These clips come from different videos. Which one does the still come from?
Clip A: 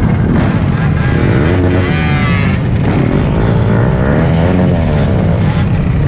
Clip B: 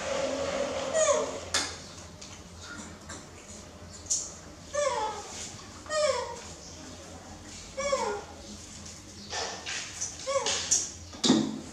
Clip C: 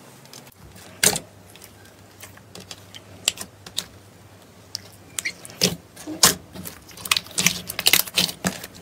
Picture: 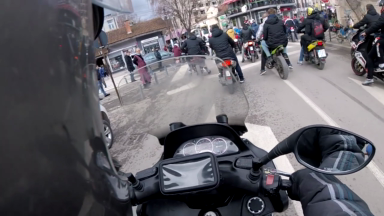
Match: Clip A